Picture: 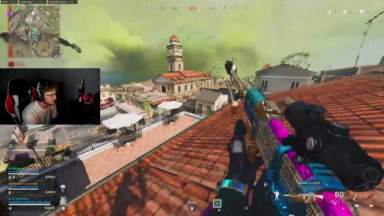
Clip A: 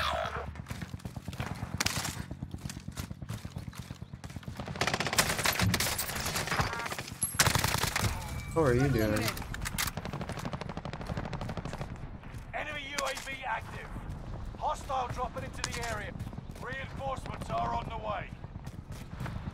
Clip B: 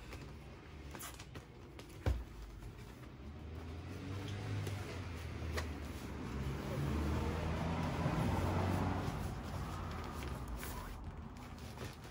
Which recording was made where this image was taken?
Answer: A